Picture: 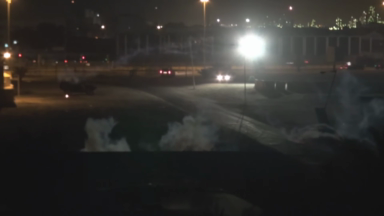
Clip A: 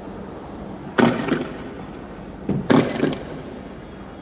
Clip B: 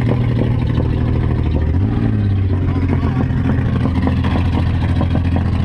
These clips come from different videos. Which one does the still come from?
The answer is A